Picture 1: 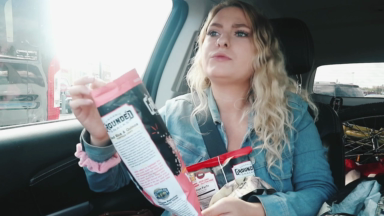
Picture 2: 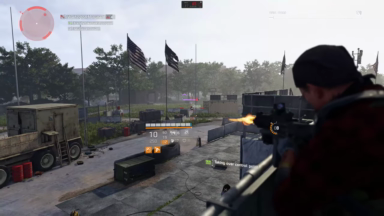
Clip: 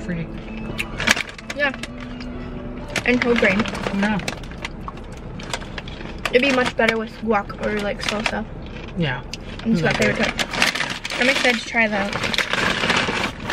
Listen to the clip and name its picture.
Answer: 1